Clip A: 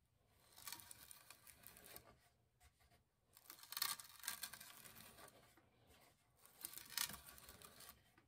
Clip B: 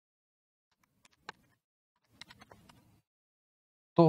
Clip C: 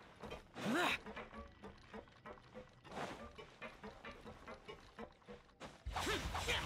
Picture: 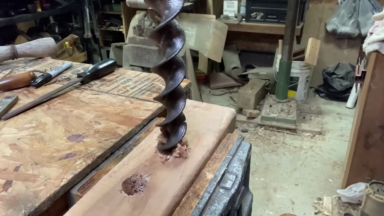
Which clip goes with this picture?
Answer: A